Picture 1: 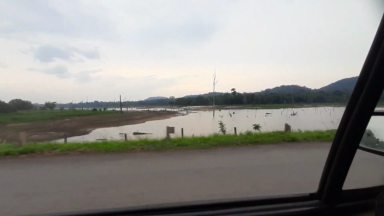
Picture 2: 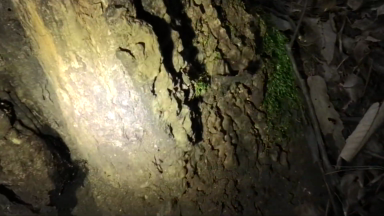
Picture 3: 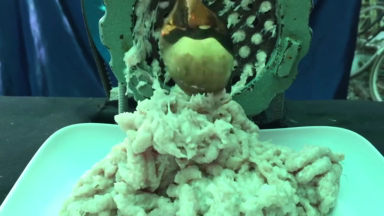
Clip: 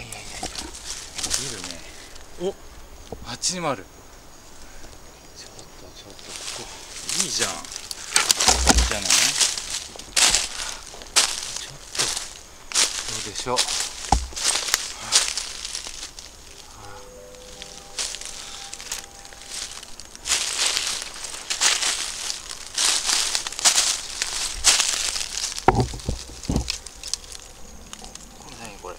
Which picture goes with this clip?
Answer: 2